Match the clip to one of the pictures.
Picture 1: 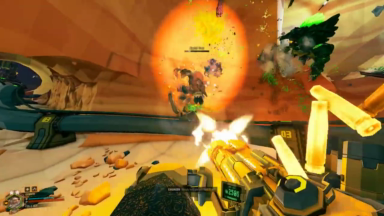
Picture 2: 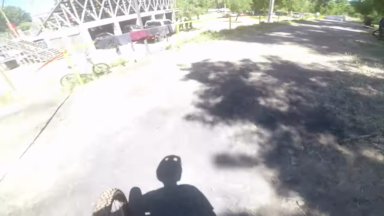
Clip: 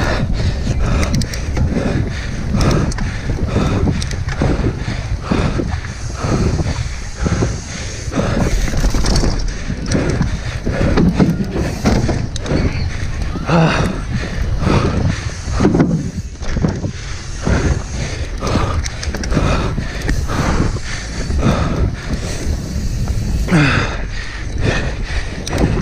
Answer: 2